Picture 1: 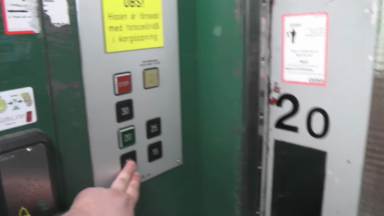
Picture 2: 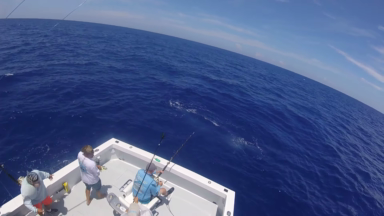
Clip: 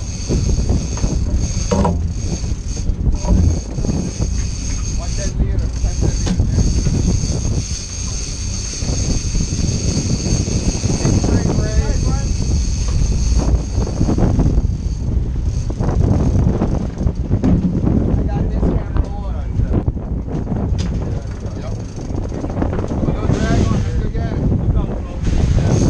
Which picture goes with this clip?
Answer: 2